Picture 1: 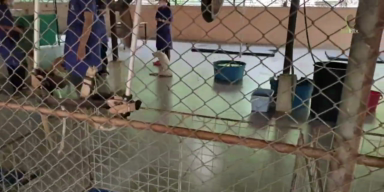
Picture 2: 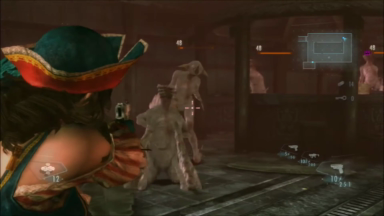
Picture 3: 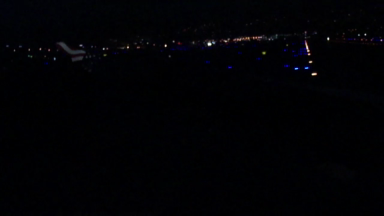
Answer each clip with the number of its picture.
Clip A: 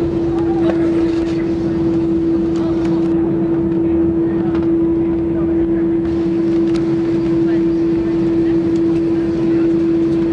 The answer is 3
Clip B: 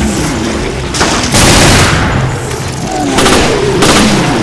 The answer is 2